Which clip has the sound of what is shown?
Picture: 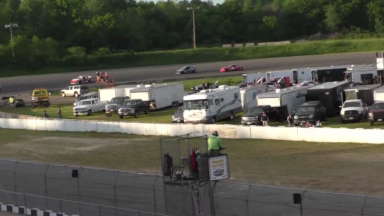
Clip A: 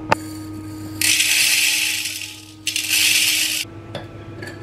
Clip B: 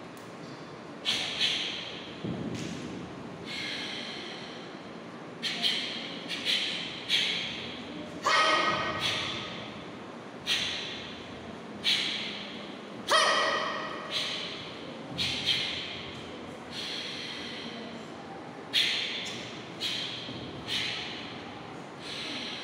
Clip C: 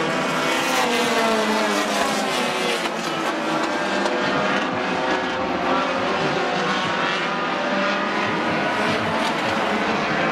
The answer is C